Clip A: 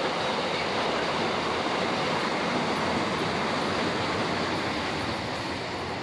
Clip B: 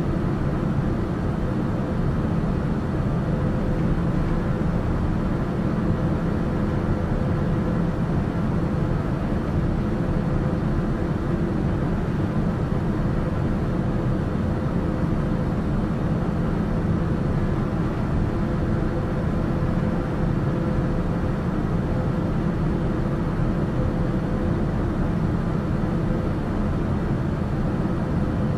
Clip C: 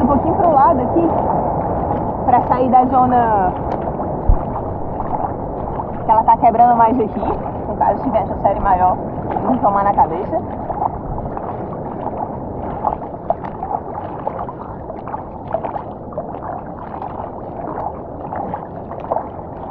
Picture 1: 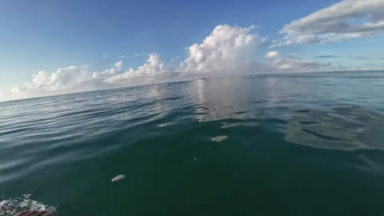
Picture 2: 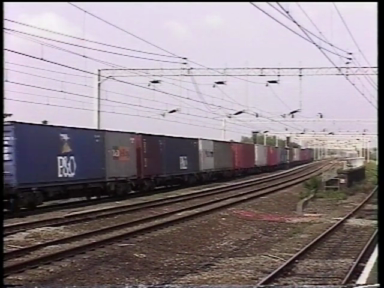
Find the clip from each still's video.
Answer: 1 C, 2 A